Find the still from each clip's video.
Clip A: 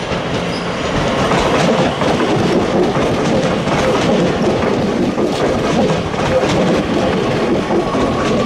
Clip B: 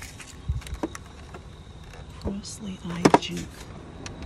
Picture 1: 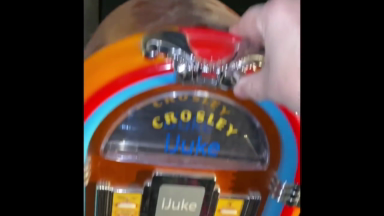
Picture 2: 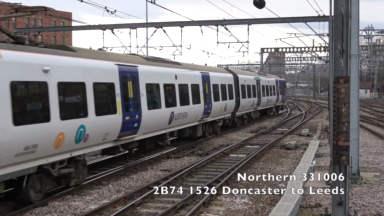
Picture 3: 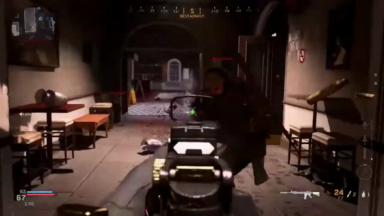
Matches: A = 2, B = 1